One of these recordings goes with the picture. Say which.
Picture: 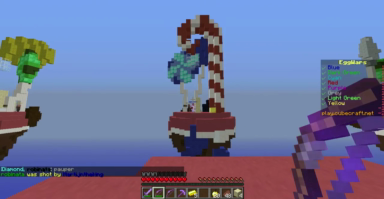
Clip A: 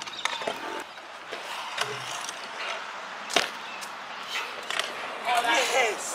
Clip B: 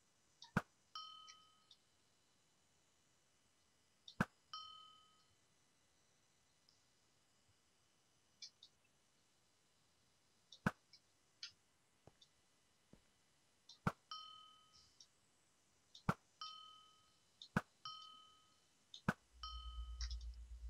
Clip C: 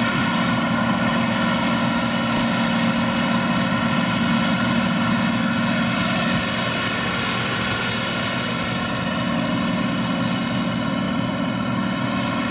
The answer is B